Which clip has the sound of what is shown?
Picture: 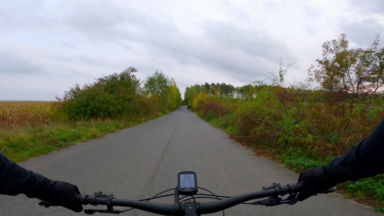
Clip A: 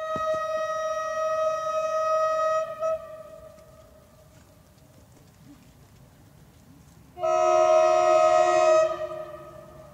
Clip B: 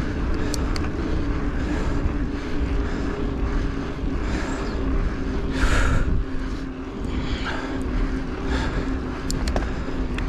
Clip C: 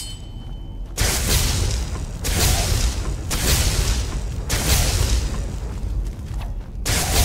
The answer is B